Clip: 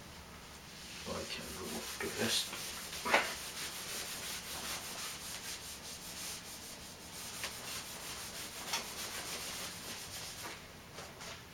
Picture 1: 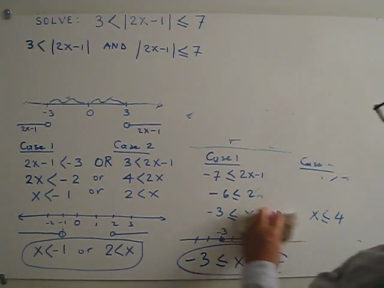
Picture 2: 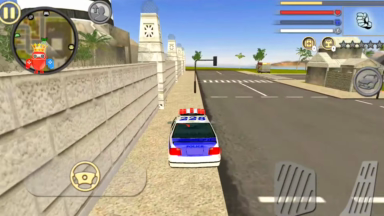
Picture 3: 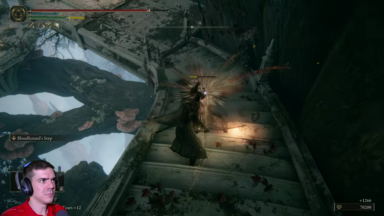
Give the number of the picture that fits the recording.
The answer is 1